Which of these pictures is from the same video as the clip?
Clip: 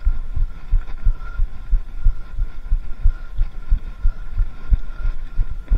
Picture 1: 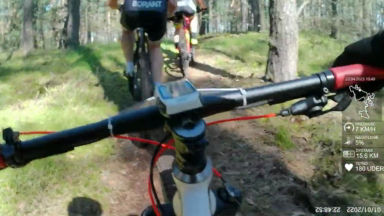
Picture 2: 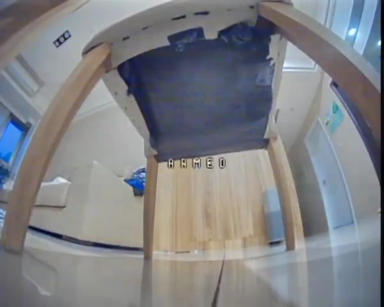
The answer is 1